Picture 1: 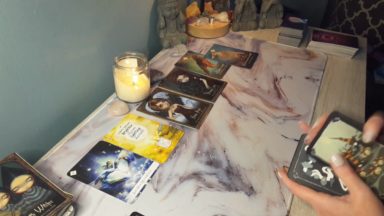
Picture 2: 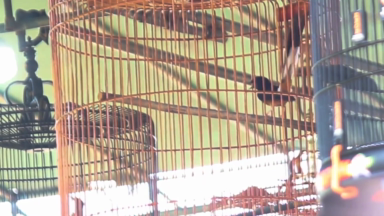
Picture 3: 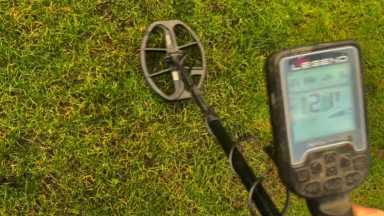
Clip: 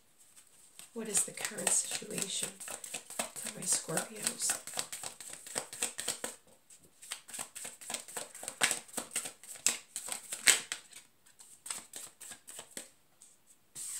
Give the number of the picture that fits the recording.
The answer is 1